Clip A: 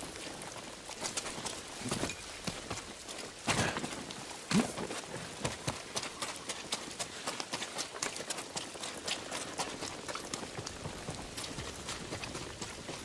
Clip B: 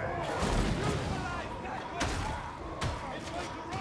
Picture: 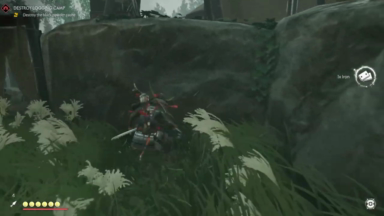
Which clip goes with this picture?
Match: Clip A